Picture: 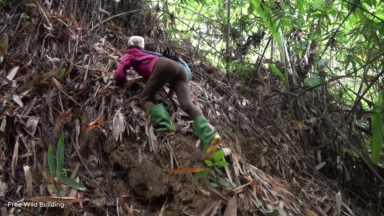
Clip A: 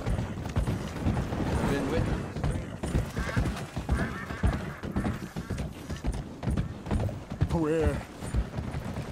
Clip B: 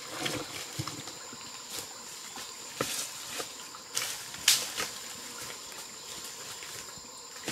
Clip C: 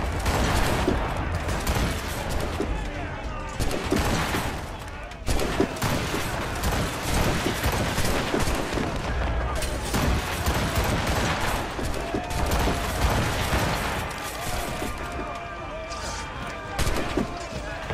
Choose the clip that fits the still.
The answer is B